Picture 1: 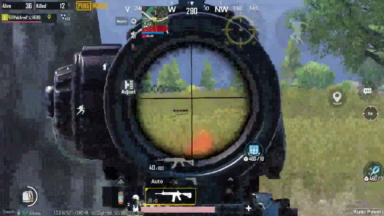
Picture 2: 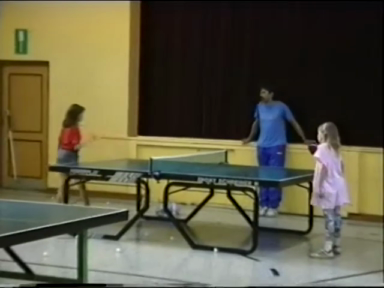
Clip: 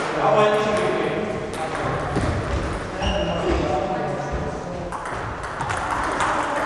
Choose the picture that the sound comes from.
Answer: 2